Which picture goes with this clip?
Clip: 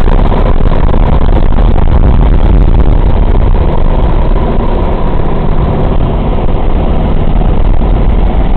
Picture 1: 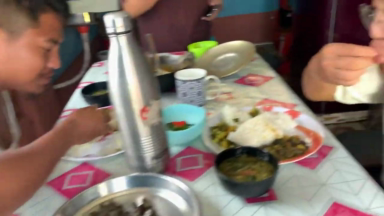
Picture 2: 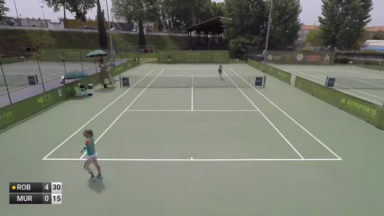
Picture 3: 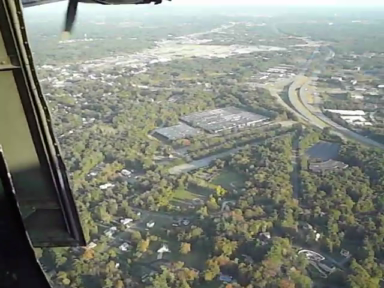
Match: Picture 3